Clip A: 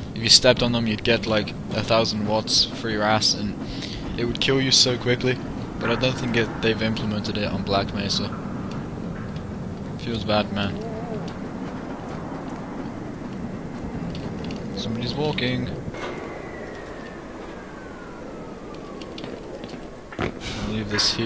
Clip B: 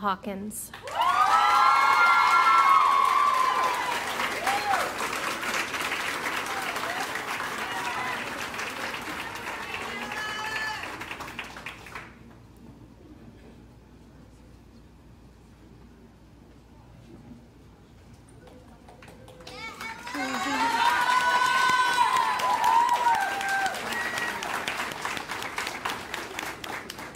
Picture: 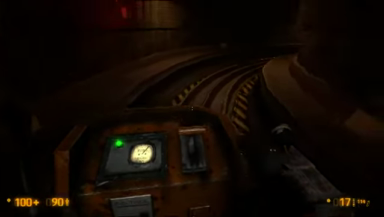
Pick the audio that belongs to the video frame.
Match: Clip A